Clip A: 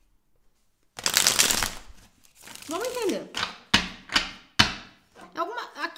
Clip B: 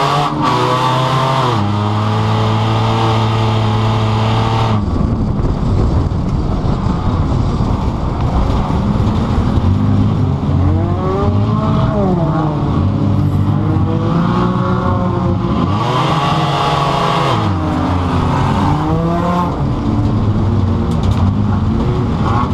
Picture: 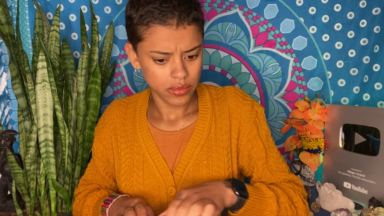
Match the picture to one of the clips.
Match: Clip A